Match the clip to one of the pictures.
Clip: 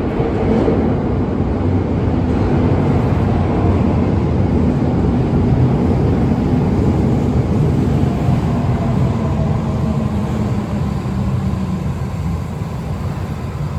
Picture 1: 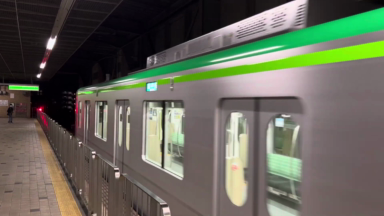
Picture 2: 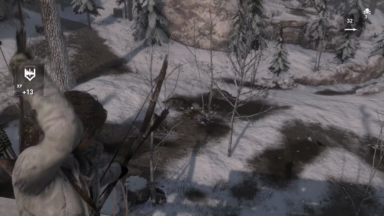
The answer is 1